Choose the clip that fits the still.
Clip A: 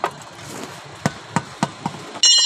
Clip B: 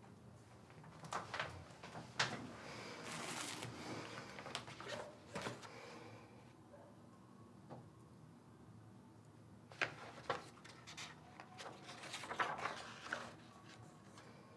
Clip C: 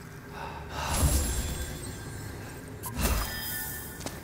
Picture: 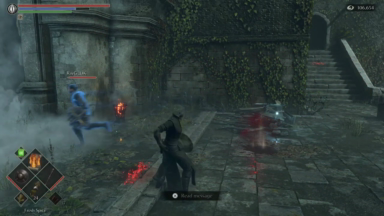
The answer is C